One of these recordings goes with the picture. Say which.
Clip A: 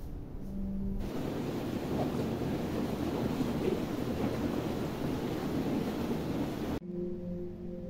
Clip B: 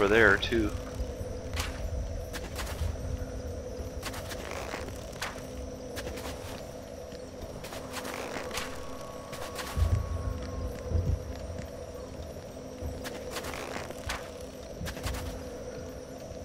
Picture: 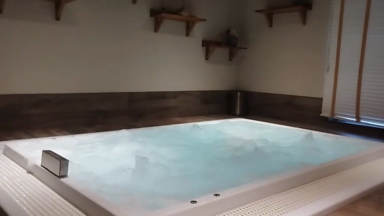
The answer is A